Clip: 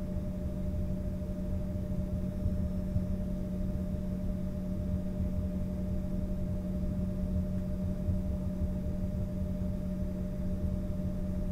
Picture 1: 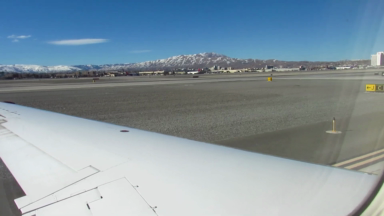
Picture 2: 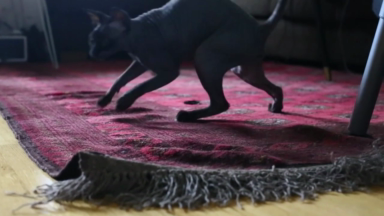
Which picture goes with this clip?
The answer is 1